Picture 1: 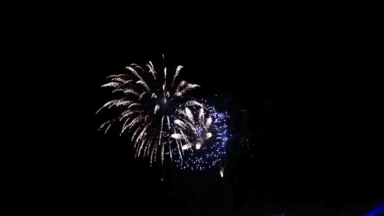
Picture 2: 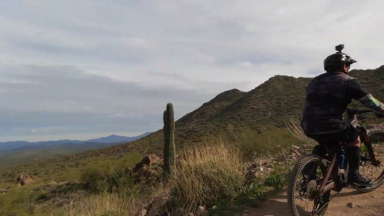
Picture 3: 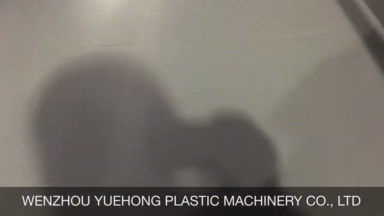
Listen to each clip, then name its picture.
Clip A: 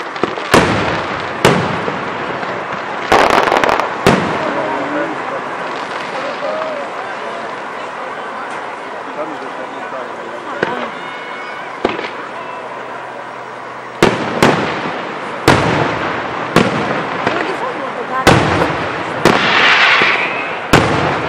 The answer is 1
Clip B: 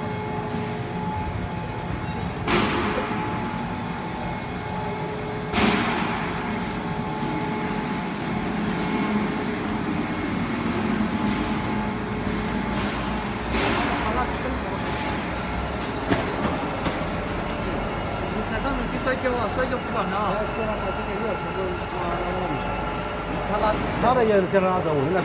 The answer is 3